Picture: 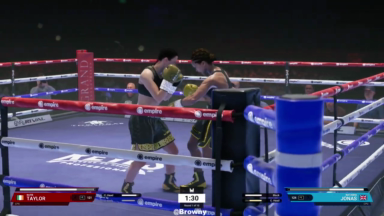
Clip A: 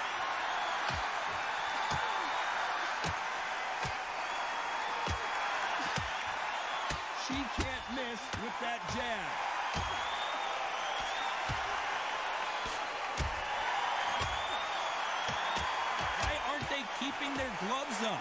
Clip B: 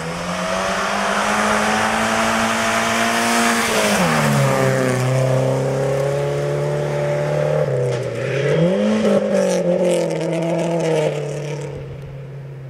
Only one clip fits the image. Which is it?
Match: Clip A